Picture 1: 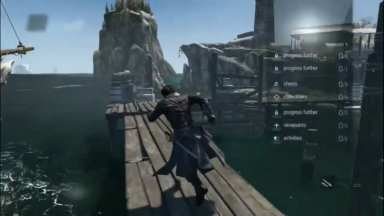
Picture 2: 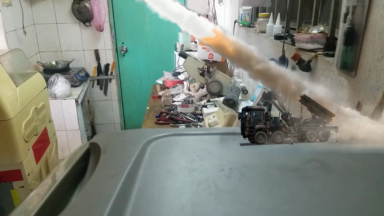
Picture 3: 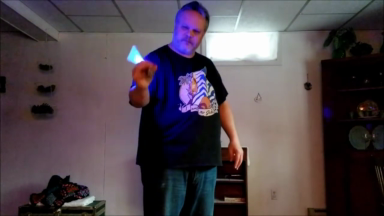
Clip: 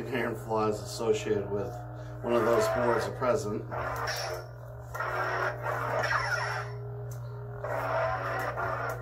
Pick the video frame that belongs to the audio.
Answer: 3